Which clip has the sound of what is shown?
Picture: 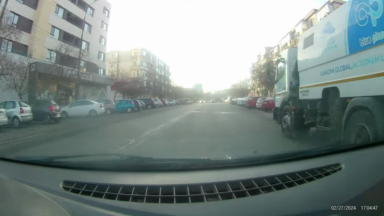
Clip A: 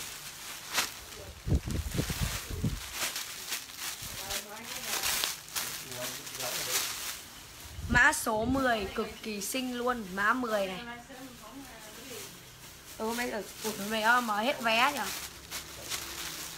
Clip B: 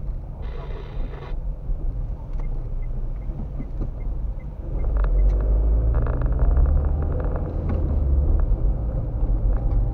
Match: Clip B